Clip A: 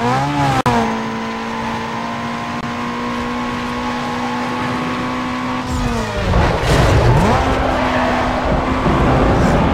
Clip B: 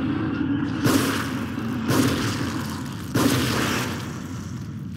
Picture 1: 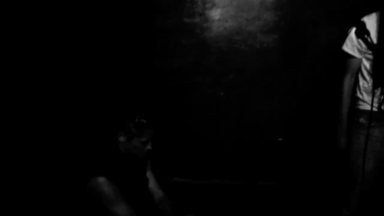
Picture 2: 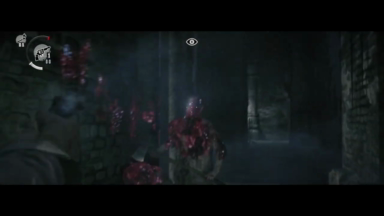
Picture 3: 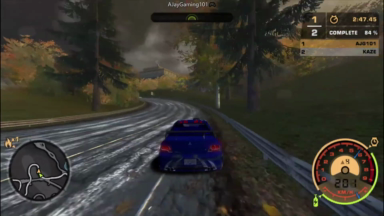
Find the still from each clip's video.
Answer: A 3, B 2